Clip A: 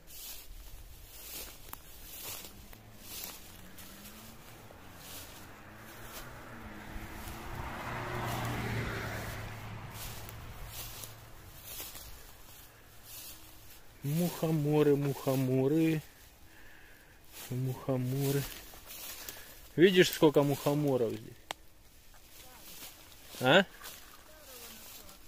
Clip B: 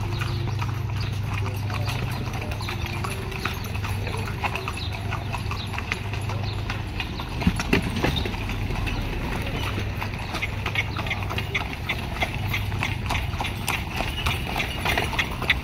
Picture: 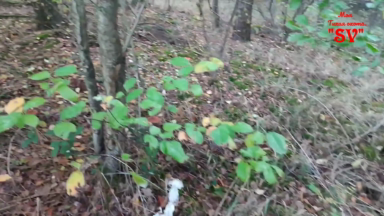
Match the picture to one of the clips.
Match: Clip A